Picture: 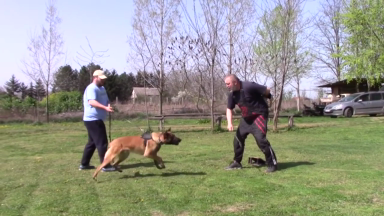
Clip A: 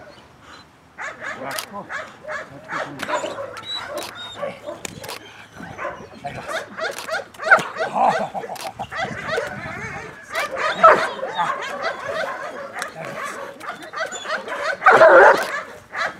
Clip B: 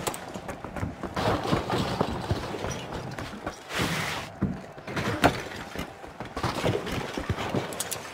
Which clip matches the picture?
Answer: A